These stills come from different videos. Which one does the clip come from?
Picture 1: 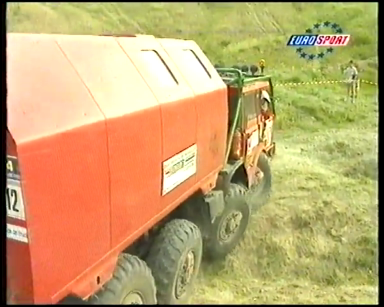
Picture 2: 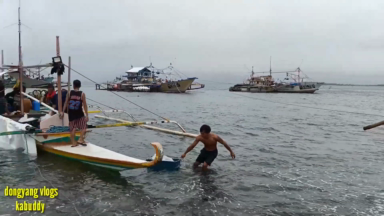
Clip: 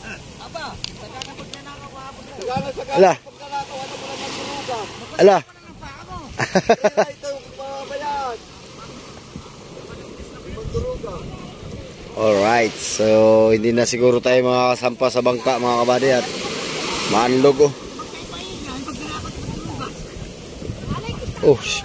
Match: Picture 2